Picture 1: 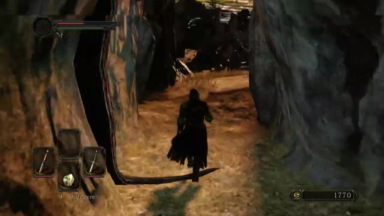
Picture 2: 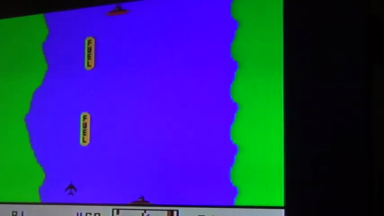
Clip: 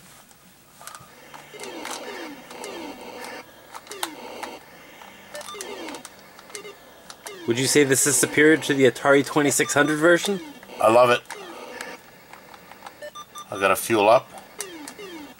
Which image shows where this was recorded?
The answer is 2